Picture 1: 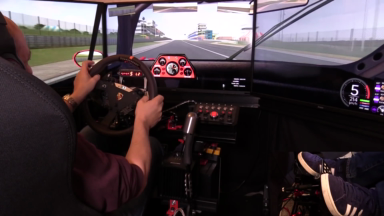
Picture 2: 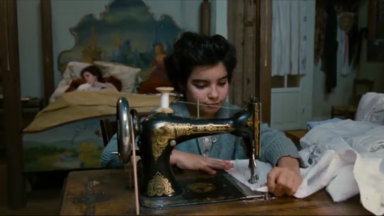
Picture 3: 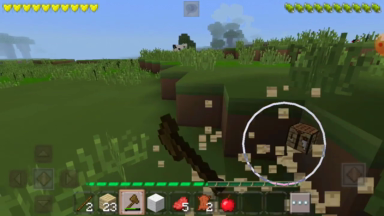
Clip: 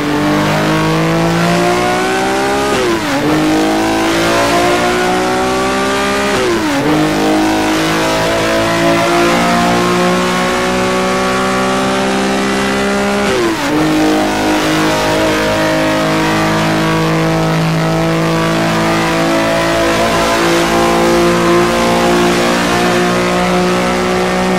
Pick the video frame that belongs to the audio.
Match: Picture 1